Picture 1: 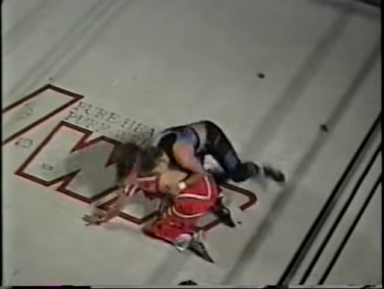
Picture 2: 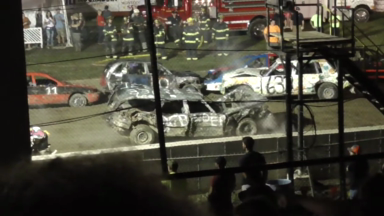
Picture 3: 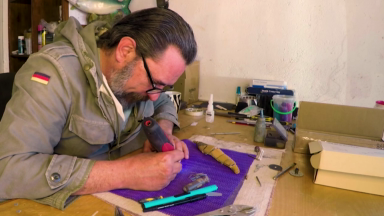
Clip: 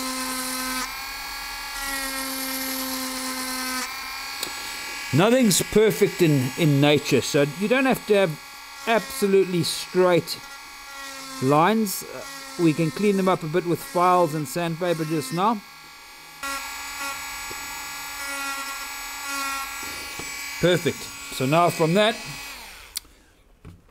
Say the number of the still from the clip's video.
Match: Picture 3